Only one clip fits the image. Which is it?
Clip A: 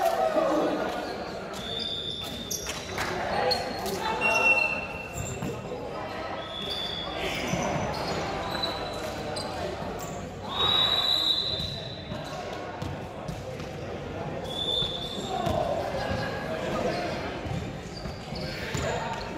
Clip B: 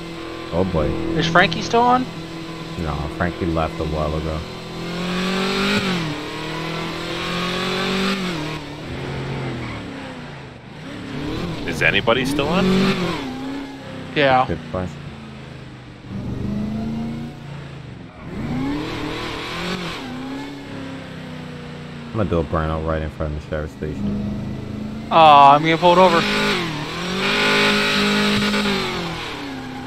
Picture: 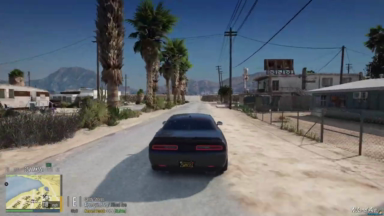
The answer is B